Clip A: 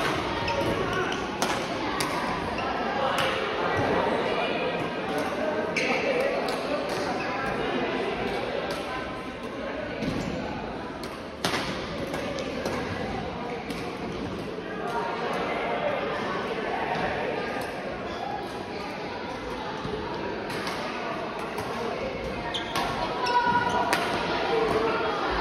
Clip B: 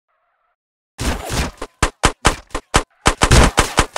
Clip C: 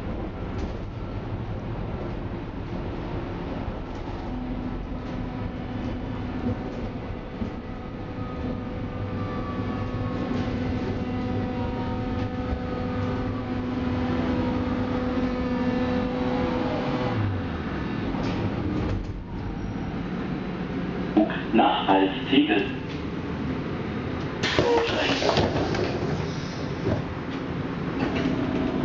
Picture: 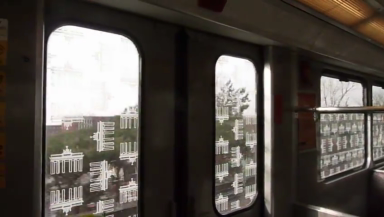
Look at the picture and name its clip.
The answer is C